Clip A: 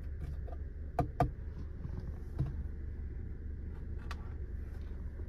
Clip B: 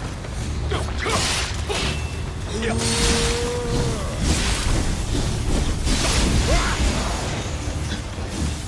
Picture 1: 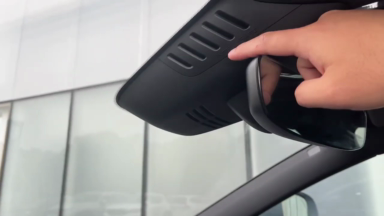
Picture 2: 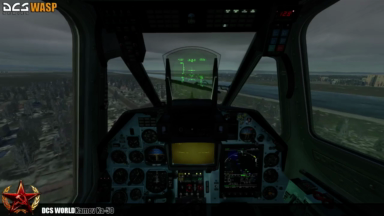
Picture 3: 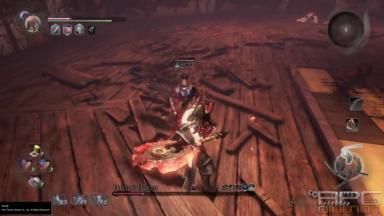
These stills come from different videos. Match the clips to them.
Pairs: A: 1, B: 3